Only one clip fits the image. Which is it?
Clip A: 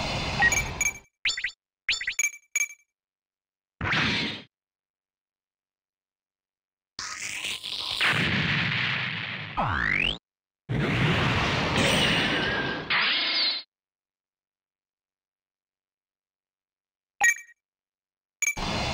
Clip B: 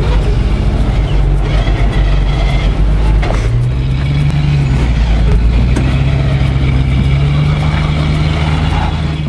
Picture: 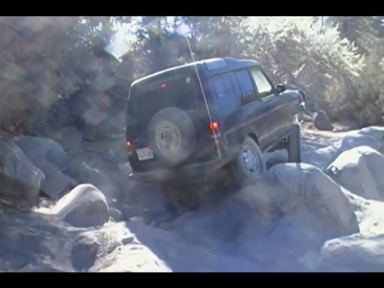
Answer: B